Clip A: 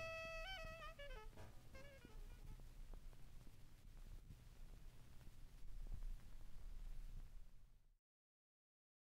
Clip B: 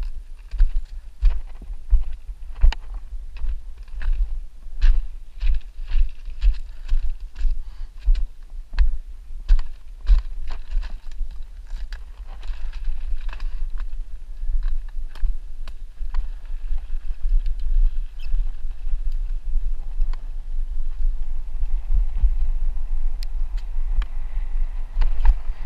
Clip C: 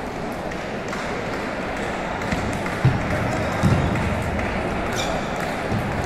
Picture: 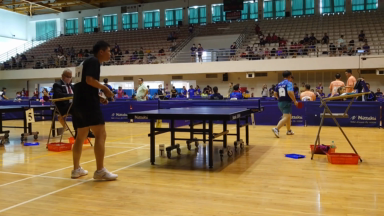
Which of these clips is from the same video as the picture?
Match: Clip C